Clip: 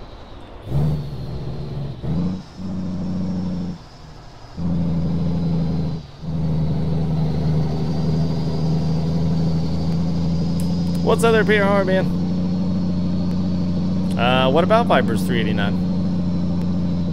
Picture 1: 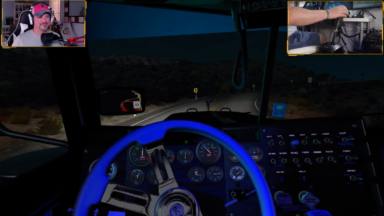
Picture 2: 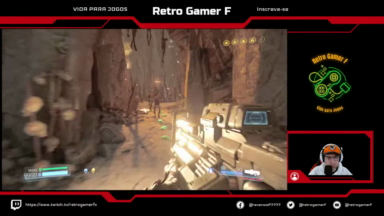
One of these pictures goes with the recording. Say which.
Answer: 1